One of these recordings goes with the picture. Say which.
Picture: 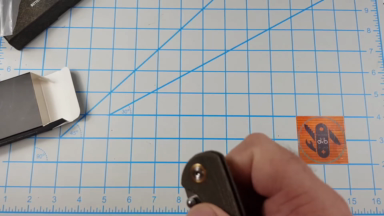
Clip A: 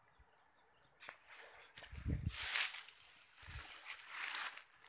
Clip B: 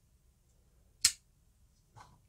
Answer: B